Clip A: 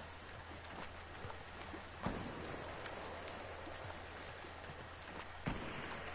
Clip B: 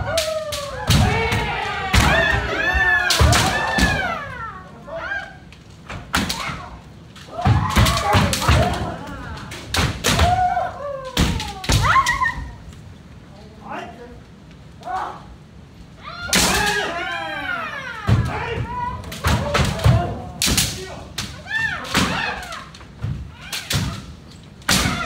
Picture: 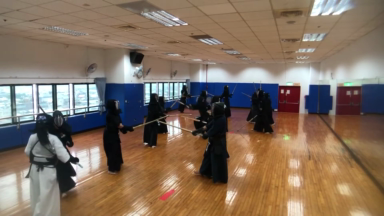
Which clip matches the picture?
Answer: B